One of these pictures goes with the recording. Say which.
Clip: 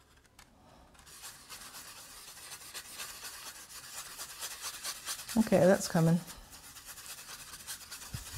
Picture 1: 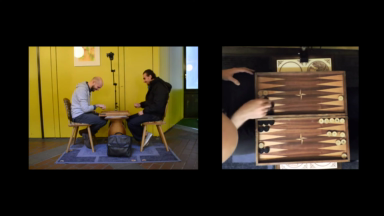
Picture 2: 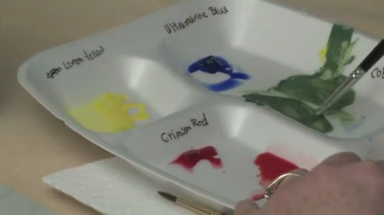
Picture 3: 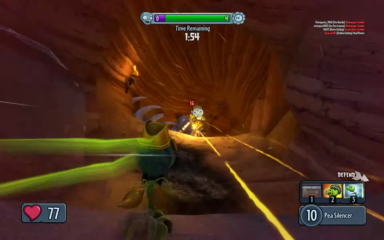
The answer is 2